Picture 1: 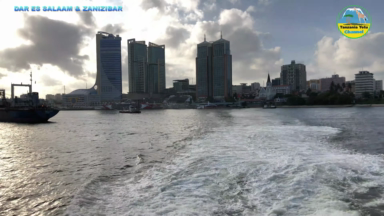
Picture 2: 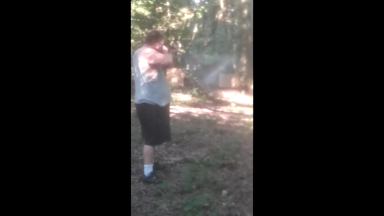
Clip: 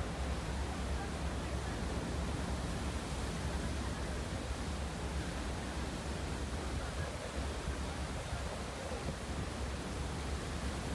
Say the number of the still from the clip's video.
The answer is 1